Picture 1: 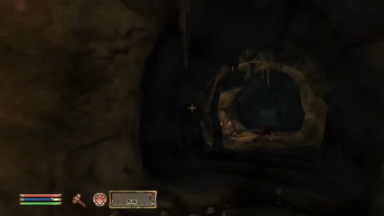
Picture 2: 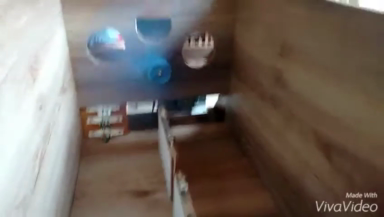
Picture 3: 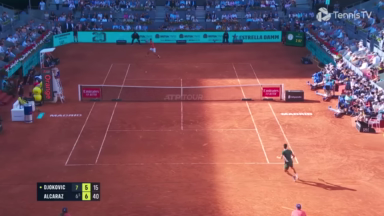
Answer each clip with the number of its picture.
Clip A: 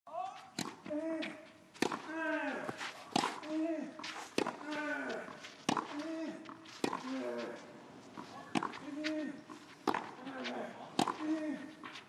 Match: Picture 3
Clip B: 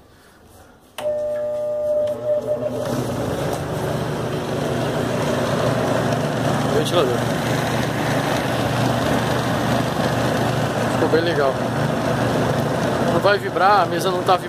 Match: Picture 2